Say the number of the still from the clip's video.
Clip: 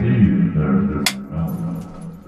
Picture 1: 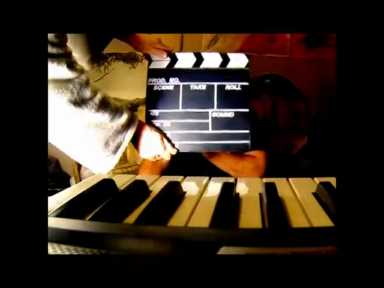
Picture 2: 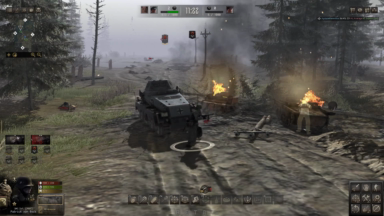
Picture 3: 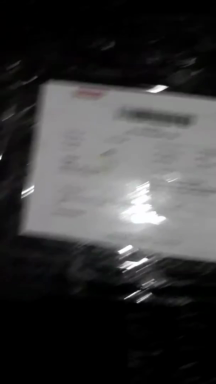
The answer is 1